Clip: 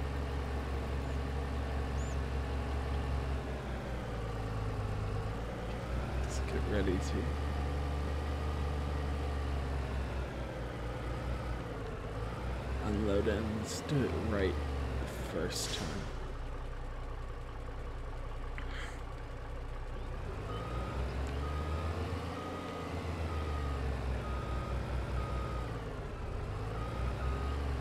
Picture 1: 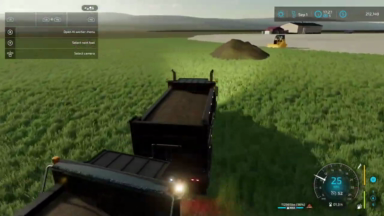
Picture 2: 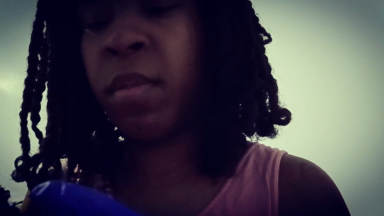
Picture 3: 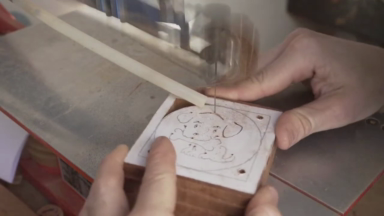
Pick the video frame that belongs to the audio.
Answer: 1